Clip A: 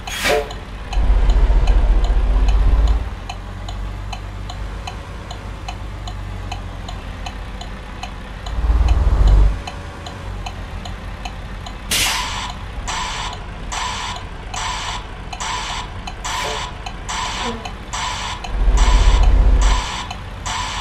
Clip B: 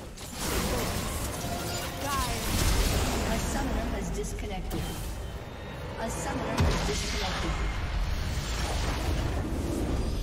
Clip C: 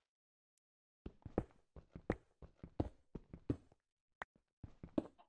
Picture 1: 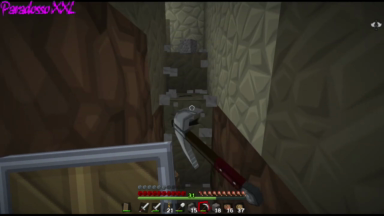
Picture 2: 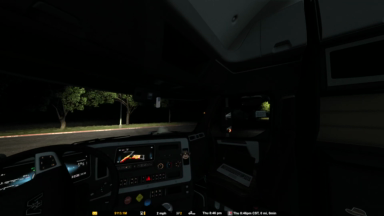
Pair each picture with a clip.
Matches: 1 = C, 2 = A